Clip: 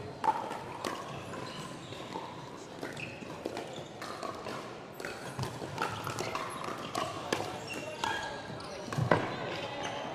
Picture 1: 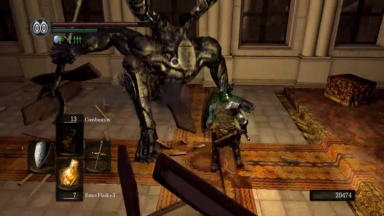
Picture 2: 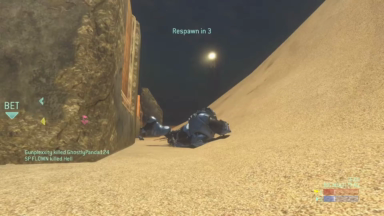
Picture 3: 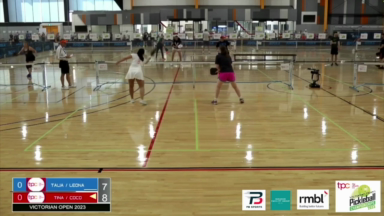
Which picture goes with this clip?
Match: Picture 3